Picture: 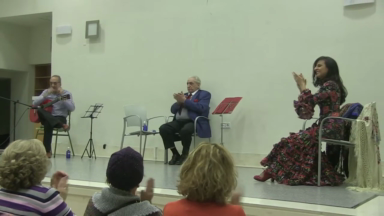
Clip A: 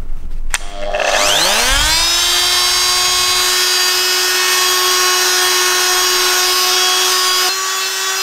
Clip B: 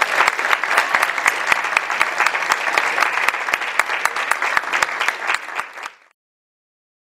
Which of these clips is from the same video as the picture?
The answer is B